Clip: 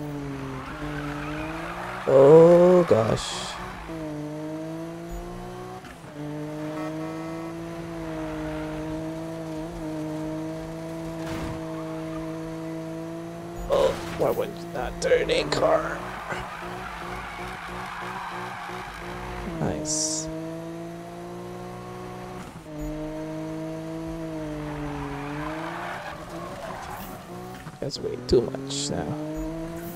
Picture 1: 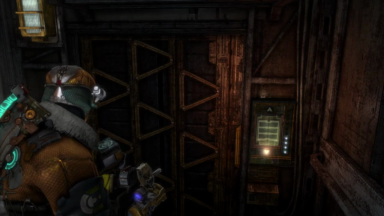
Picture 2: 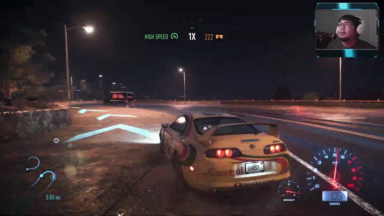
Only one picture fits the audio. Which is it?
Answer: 2